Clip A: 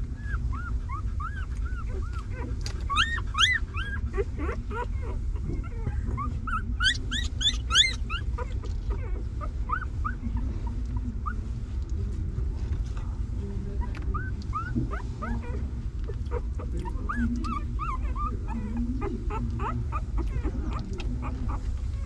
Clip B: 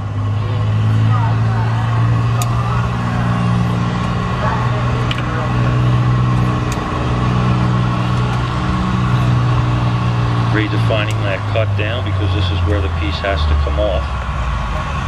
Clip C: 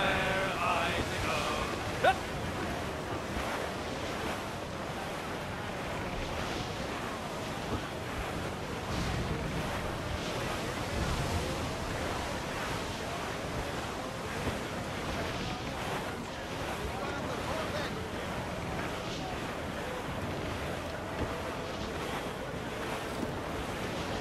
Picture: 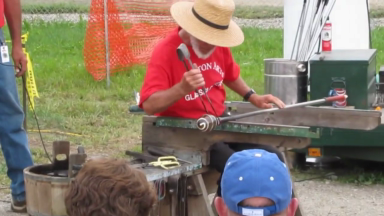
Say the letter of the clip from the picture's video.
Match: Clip B